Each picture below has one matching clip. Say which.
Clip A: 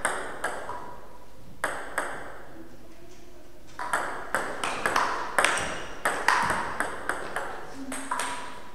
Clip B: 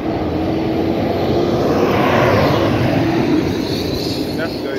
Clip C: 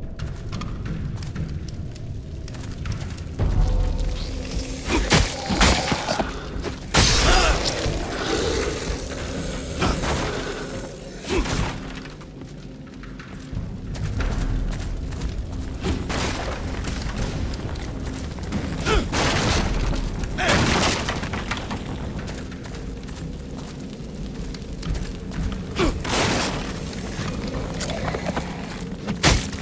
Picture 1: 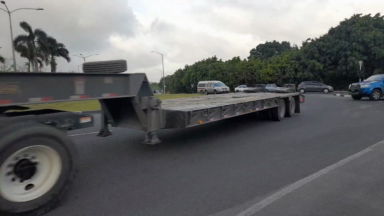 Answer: B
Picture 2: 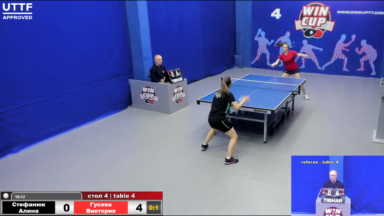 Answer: A